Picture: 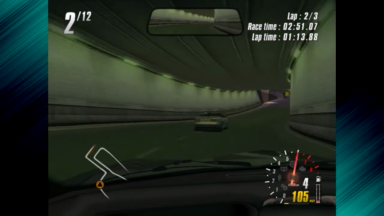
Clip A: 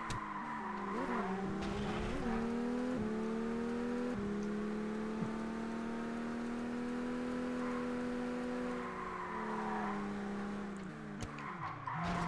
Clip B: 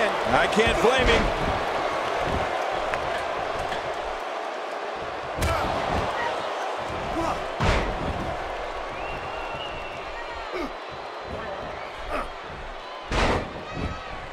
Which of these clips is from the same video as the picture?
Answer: A